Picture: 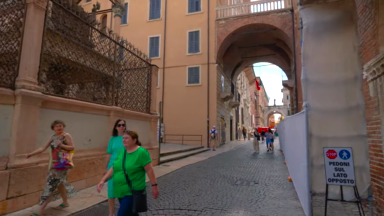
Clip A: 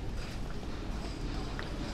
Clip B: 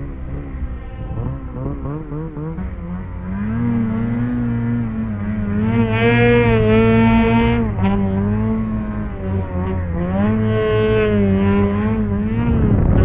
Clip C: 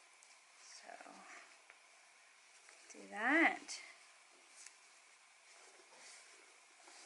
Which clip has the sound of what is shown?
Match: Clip A